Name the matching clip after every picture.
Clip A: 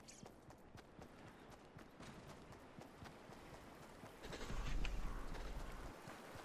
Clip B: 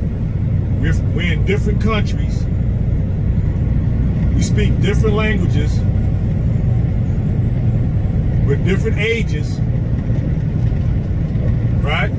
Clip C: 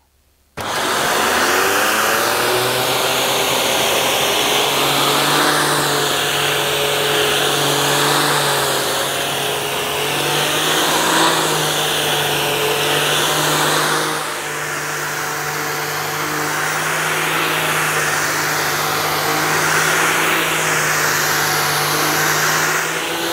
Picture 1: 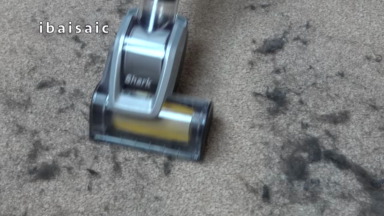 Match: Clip C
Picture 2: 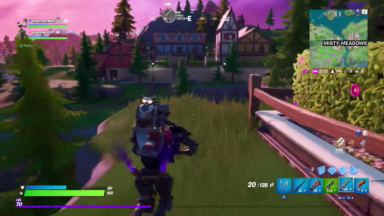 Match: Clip A